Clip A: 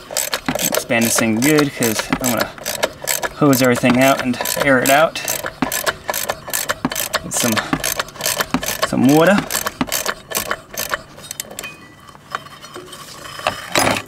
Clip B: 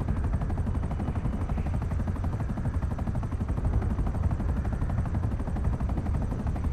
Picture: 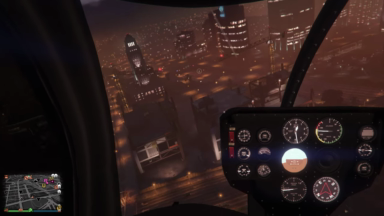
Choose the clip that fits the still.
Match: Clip B